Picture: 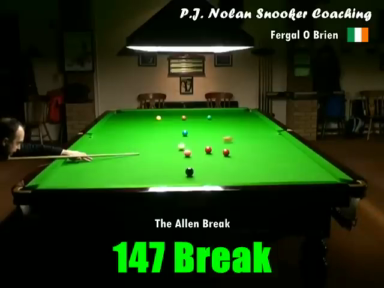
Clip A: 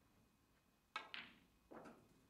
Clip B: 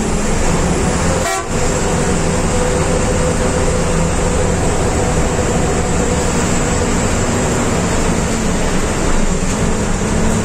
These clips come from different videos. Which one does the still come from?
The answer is A